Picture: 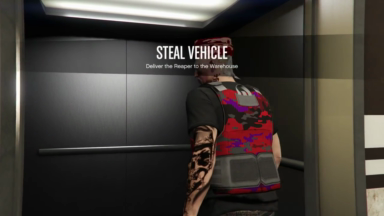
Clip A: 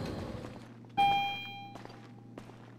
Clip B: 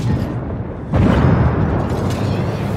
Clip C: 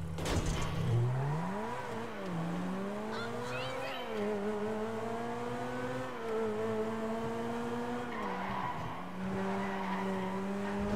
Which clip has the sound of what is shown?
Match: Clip A